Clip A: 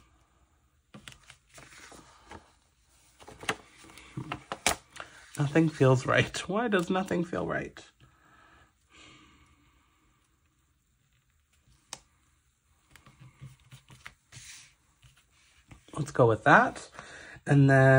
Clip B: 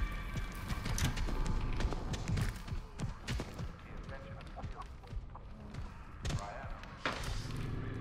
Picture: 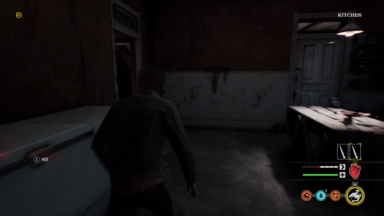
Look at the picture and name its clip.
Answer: B